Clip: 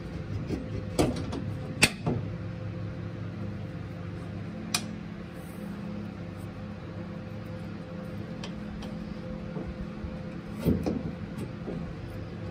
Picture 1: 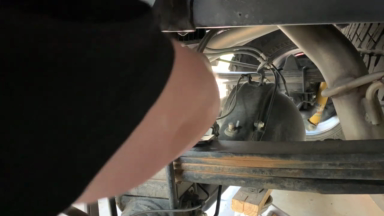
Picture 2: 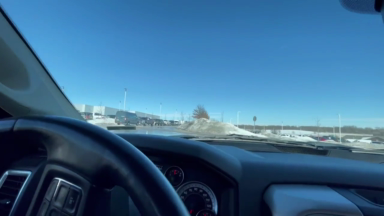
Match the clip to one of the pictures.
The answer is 1